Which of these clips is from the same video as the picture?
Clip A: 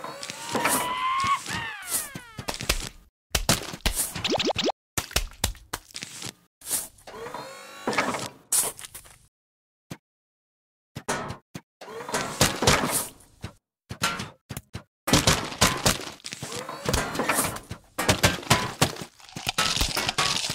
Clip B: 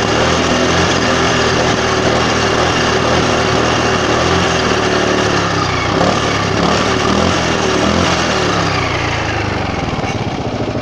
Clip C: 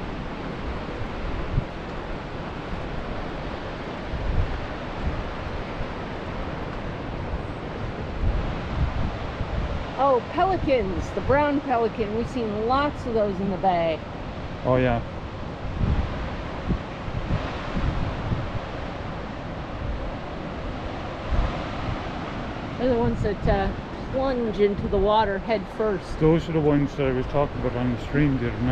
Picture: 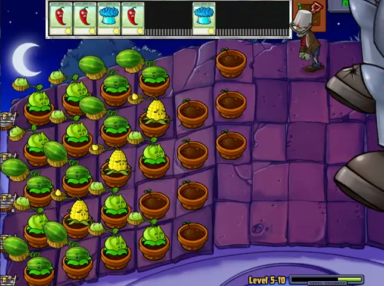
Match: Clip A